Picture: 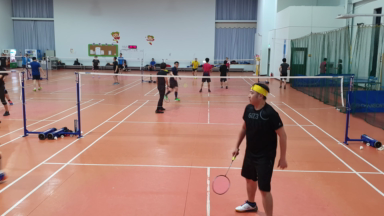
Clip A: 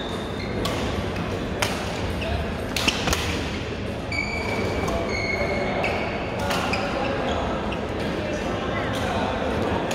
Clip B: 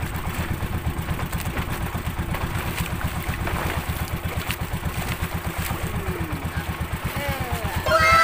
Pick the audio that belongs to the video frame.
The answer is A